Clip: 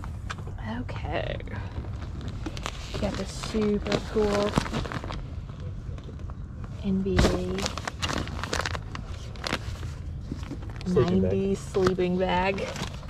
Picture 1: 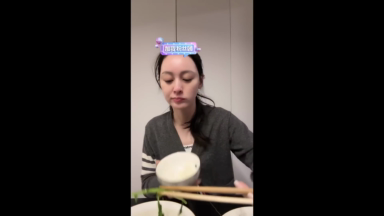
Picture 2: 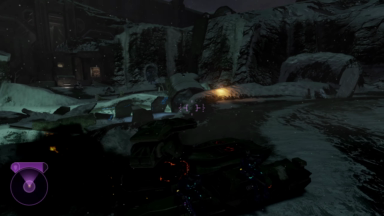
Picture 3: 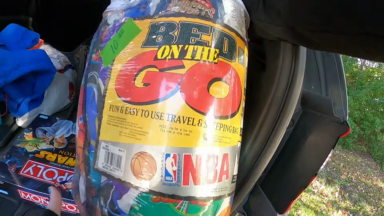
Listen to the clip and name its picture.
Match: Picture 3